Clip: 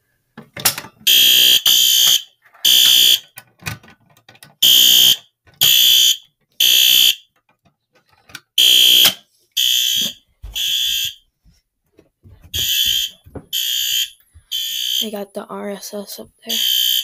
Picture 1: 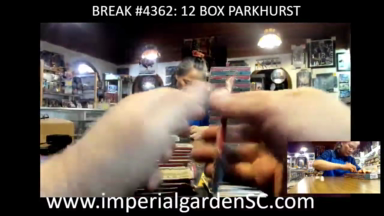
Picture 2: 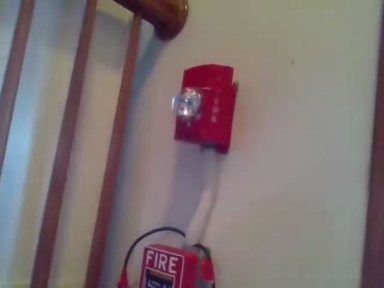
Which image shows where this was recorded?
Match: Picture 2